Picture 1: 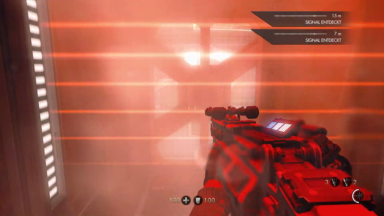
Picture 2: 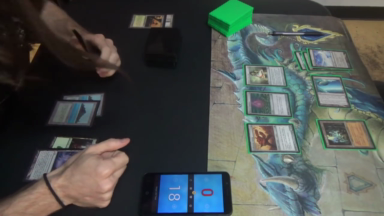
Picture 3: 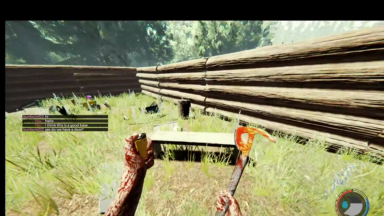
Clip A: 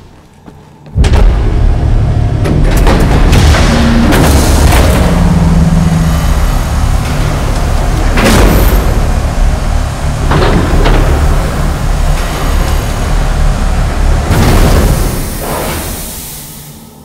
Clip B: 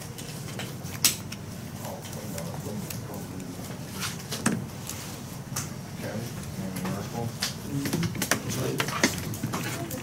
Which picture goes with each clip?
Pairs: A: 1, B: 2